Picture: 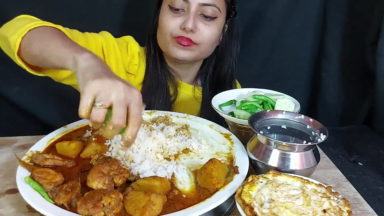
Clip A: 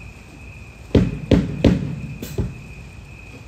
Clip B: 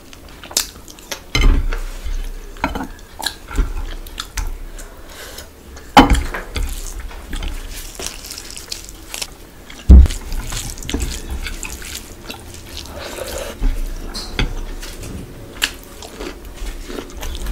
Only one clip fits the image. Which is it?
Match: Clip B